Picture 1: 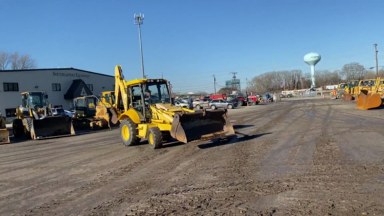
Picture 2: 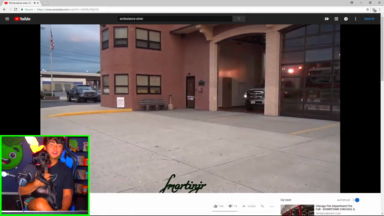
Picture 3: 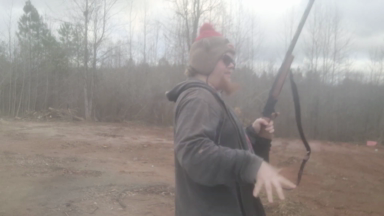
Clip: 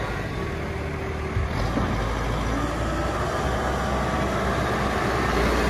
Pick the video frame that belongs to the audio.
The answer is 1